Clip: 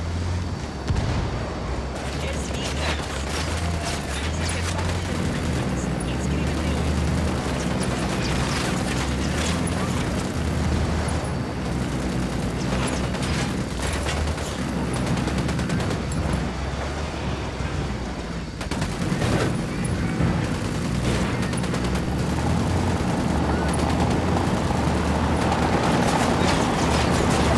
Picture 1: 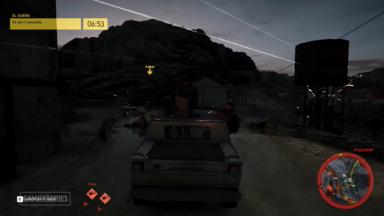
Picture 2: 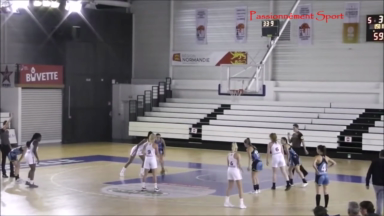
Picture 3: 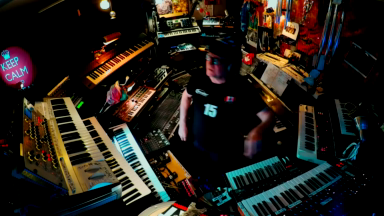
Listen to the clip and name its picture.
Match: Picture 1